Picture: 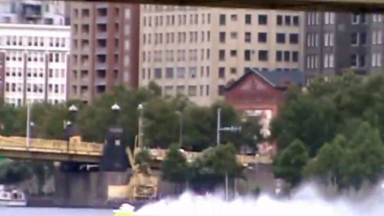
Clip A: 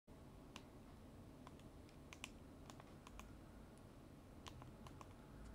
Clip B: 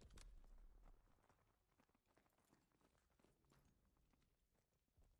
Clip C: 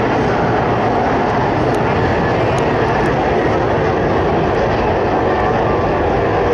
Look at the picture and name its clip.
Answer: C